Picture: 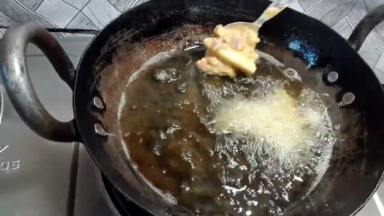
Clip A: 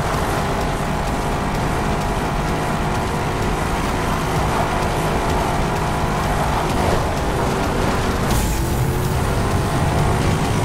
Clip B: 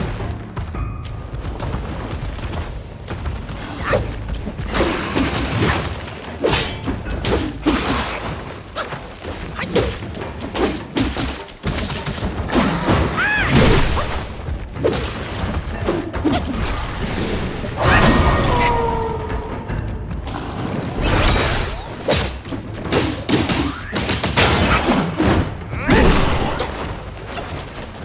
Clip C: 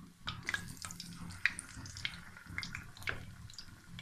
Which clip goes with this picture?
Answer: C